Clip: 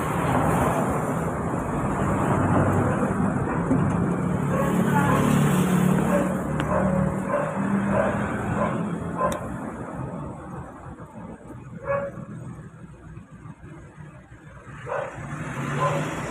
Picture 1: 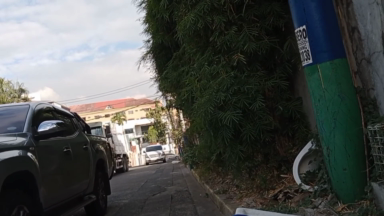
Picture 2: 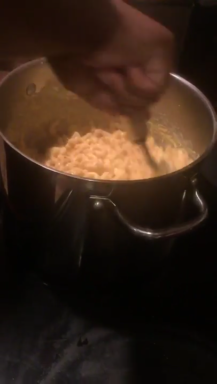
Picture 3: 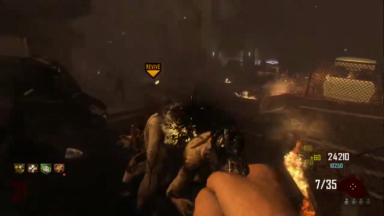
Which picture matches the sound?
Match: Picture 1